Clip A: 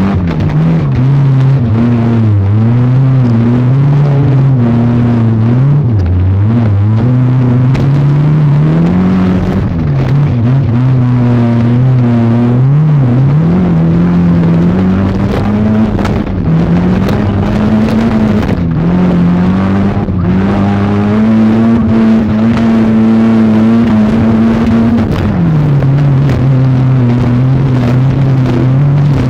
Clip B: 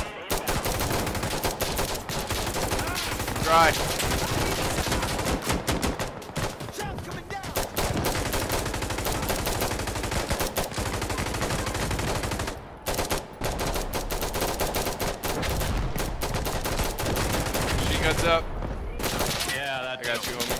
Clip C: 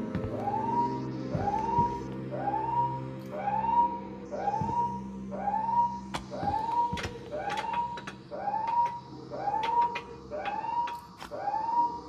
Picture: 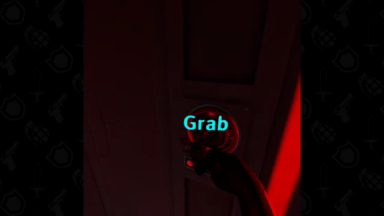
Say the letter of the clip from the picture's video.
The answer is C